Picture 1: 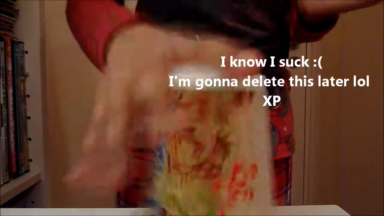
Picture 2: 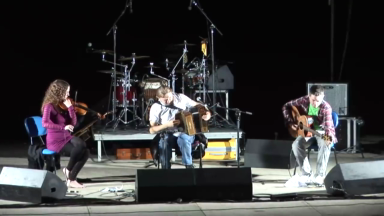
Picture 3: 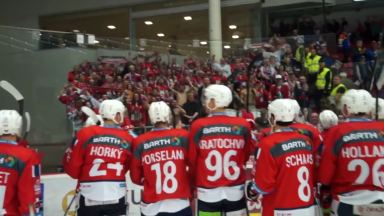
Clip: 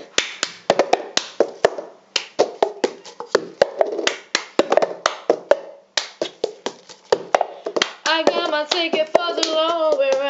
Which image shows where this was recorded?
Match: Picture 1